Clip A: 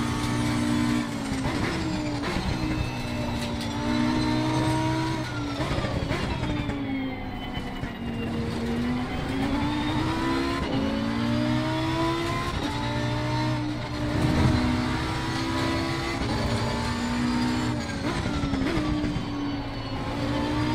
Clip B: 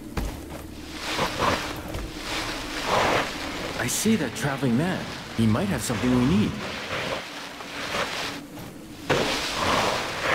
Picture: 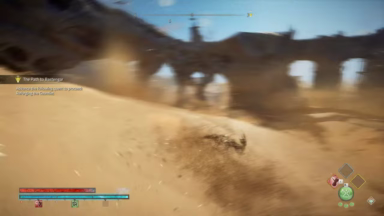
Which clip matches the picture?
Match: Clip B